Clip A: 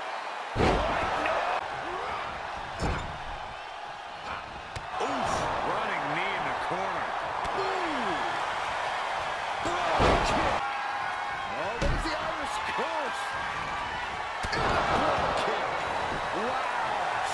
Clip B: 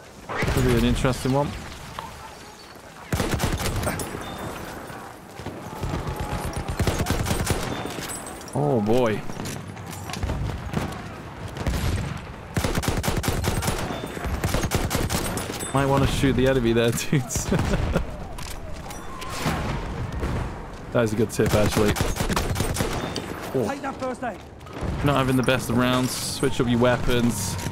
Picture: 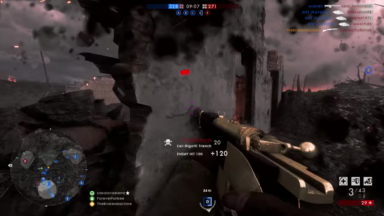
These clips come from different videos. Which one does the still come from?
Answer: B